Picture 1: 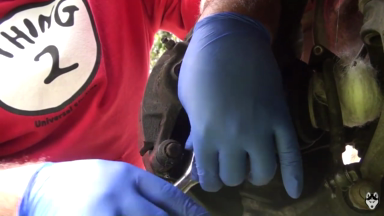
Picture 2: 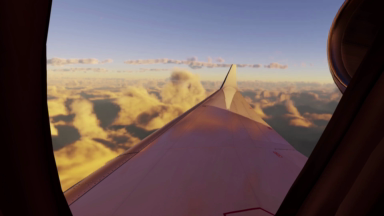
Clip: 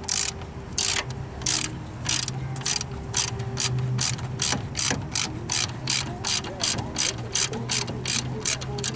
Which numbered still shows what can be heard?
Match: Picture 1